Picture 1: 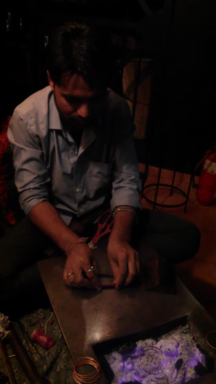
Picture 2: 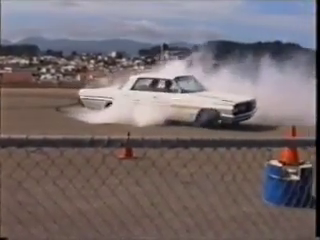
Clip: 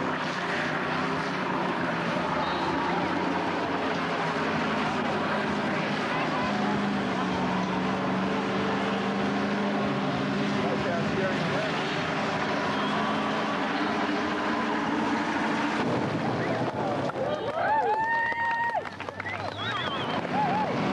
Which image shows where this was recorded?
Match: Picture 2